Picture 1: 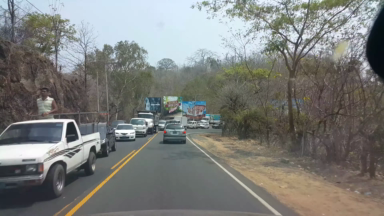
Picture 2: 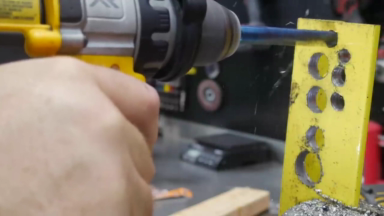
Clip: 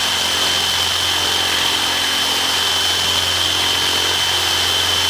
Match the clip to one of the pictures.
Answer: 2